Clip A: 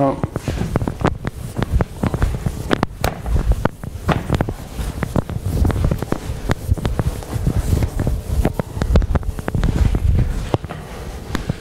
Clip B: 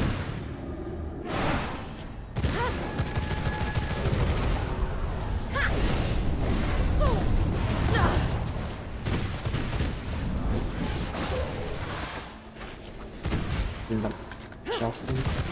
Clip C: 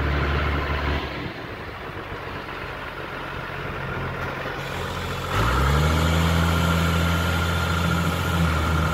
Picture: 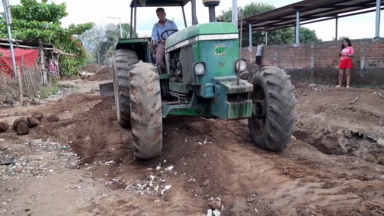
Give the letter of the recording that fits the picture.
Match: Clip C